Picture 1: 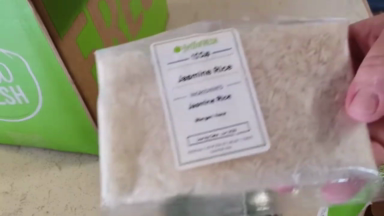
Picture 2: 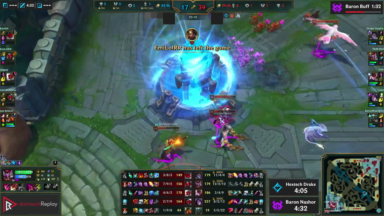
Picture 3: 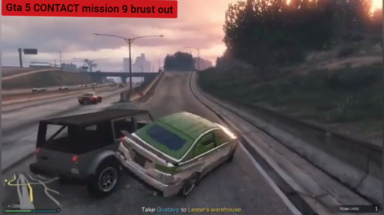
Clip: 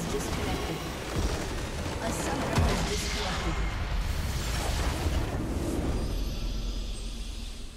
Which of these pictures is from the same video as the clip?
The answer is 2